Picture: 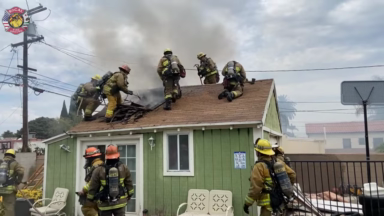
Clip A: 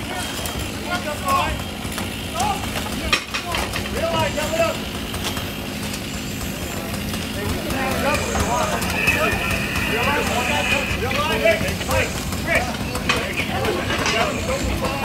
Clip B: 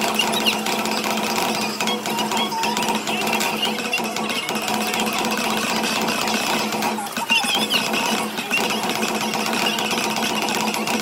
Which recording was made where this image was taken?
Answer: A